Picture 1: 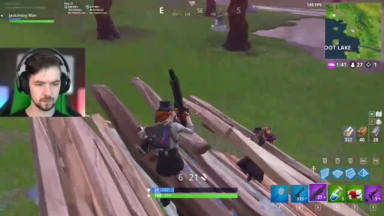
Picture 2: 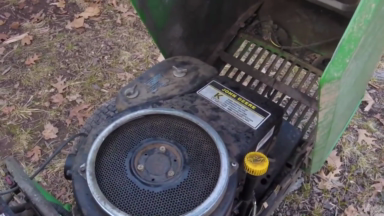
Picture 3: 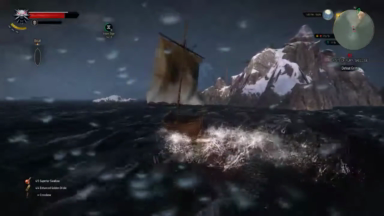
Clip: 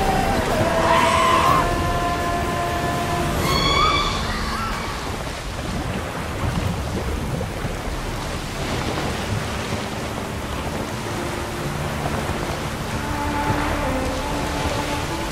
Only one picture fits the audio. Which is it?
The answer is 3